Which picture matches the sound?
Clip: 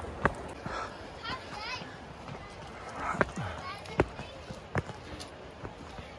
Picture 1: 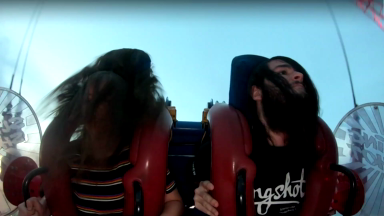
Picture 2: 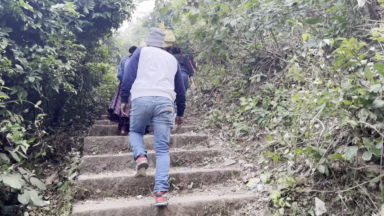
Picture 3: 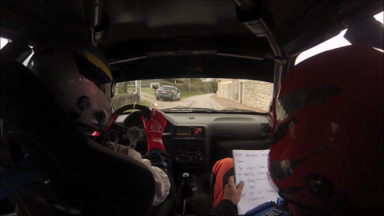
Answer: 2